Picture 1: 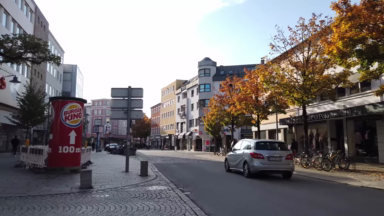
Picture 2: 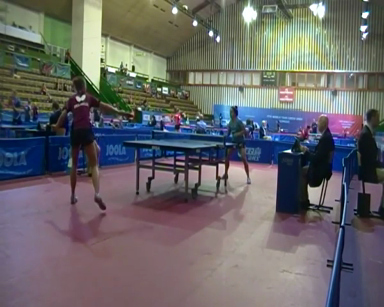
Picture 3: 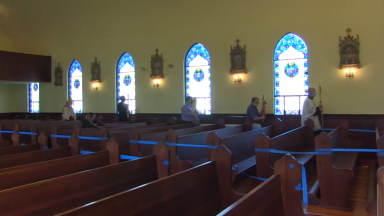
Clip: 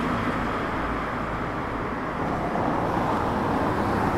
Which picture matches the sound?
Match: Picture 1